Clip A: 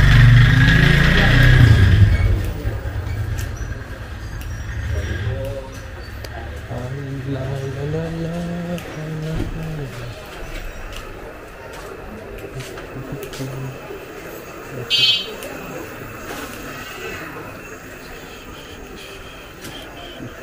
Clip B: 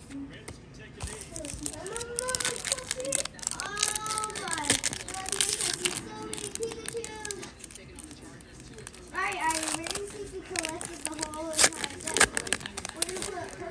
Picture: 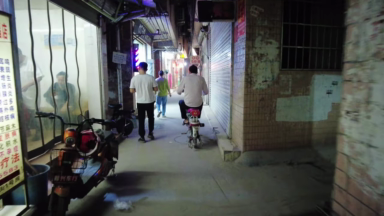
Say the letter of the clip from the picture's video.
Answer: A